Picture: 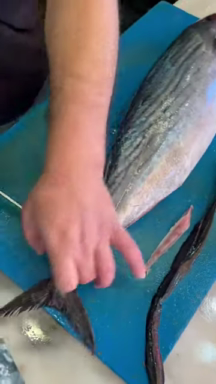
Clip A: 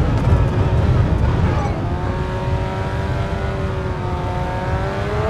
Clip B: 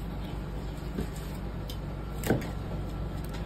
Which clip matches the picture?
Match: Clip B